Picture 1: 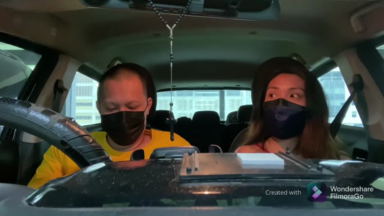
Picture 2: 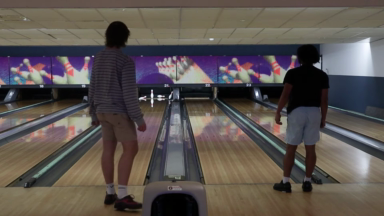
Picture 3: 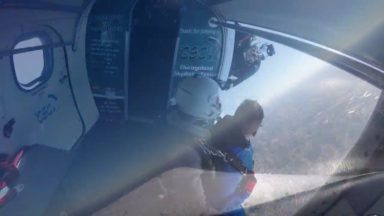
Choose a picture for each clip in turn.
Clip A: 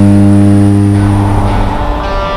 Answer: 3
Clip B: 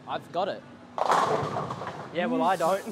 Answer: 2